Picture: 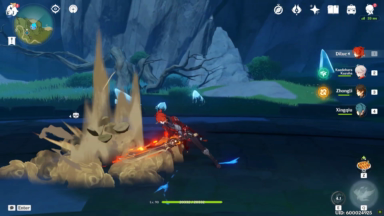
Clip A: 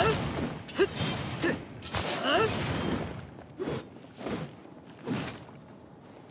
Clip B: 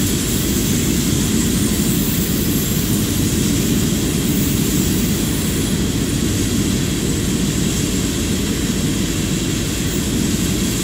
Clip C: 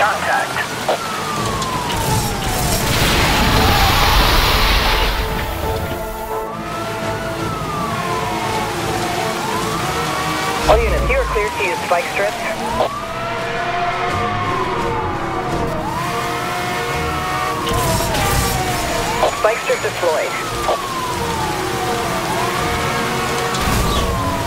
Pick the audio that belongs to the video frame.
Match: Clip A